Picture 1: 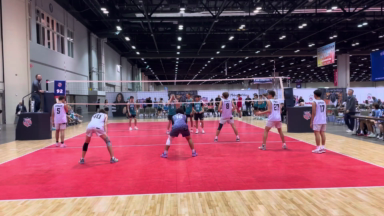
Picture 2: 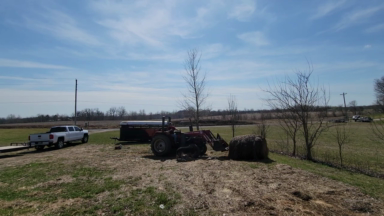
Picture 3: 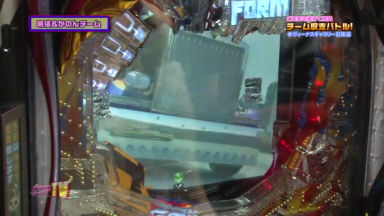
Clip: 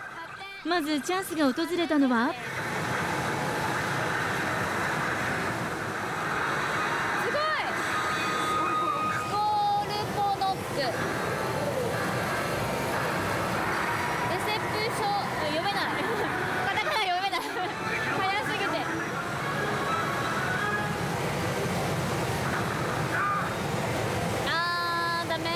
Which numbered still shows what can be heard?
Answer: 3